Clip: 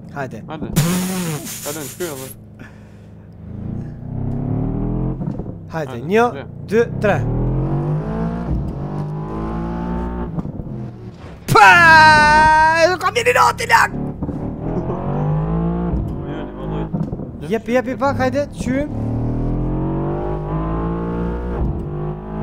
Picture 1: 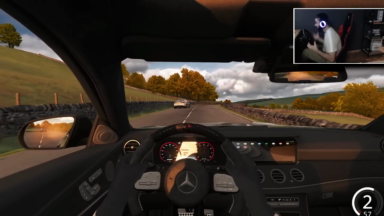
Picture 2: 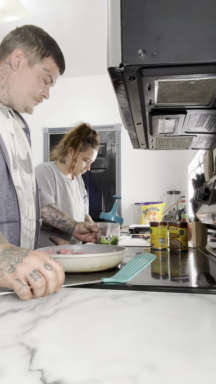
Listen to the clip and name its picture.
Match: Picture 1